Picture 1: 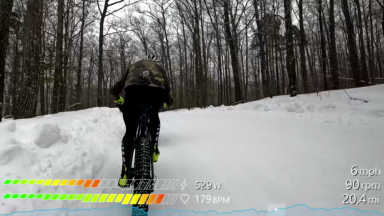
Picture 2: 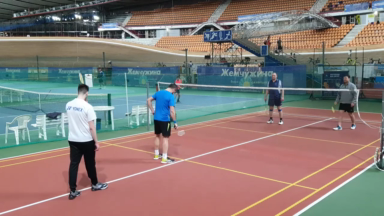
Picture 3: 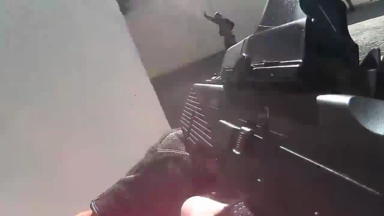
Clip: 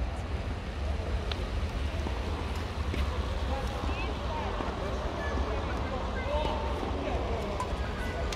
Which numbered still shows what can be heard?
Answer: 2